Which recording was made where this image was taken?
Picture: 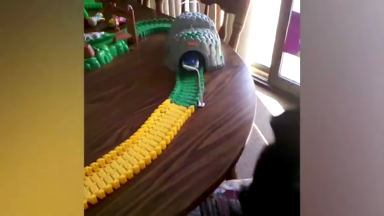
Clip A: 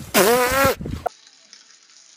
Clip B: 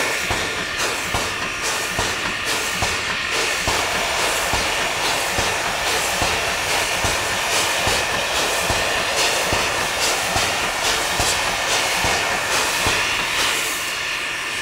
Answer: A